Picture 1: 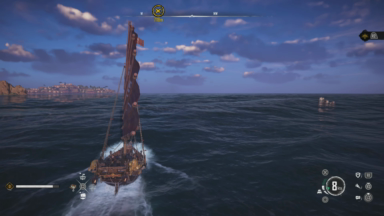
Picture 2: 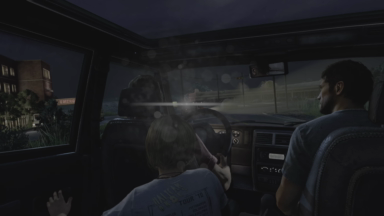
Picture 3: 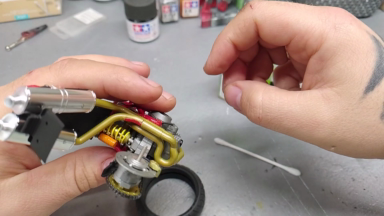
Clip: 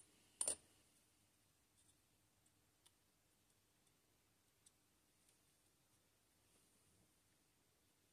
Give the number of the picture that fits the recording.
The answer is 3